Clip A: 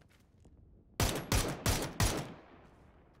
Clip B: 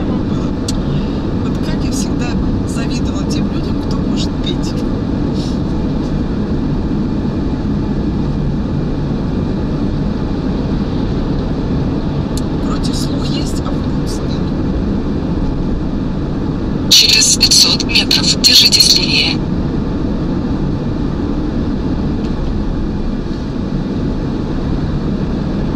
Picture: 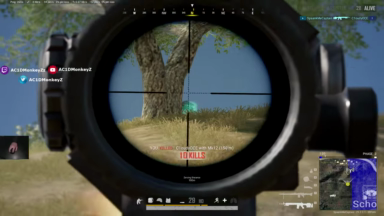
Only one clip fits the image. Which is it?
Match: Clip A